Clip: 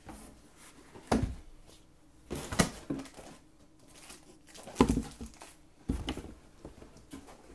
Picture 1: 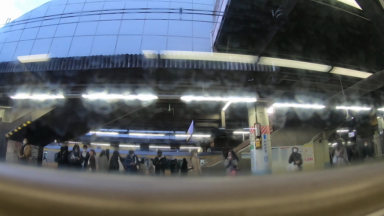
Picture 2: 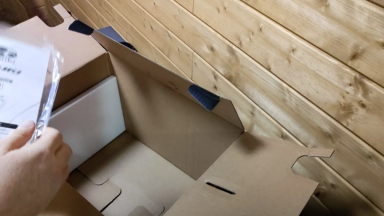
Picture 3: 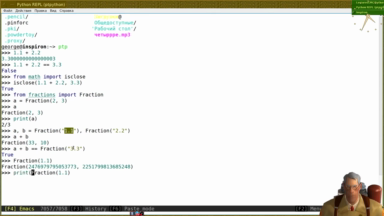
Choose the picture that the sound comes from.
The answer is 2